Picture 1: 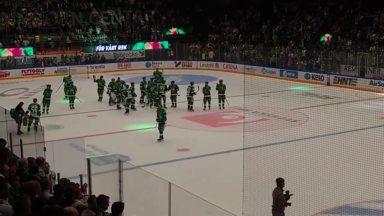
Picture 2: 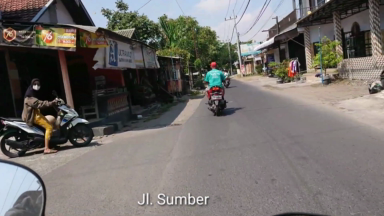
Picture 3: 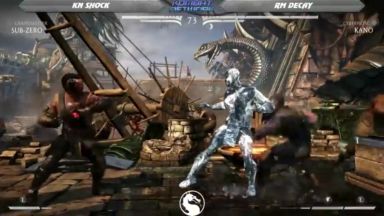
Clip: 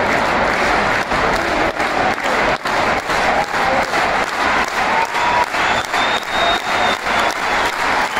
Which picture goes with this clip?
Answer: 1